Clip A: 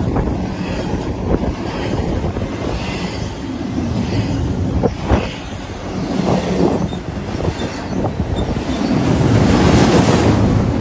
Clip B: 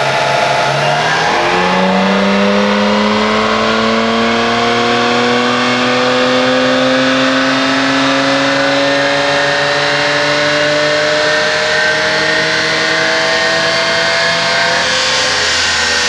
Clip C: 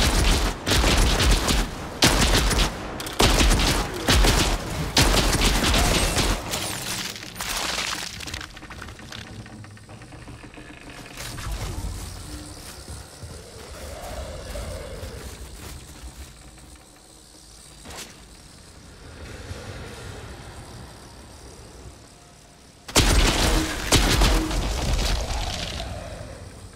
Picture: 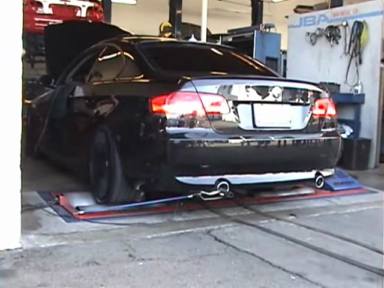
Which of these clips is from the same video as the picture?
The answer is B